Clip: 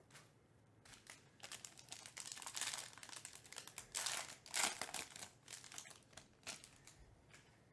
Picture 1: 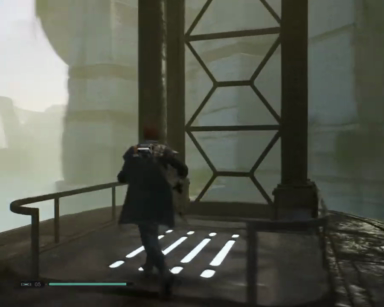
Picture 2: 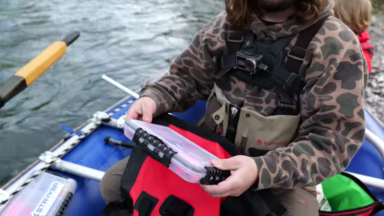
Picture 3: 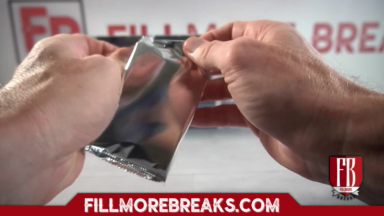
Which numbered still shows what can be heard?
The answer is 3